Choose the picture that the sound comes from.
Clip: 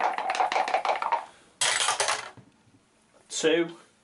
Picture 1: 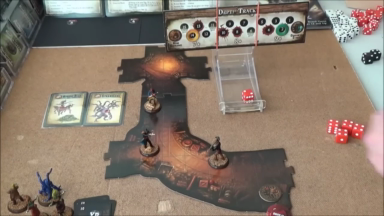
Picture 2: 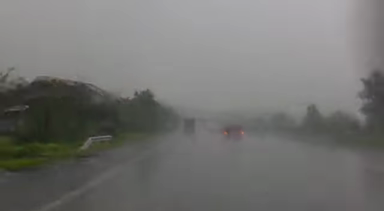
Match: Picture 1